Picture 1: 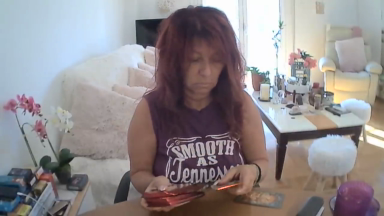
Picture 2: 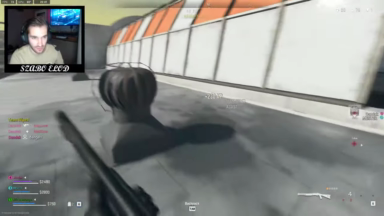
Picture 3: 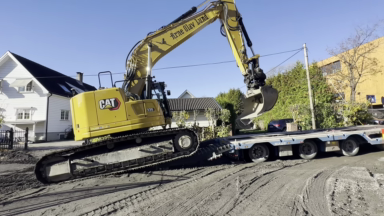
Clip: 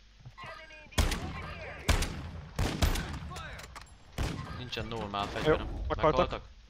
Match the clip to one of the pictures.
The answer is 2